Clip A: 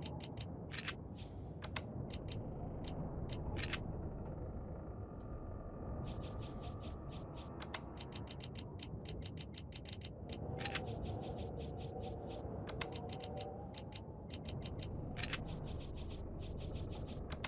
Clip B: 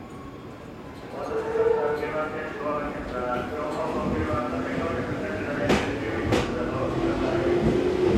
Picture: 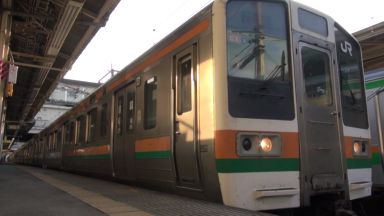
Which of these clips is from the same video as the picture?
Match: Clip B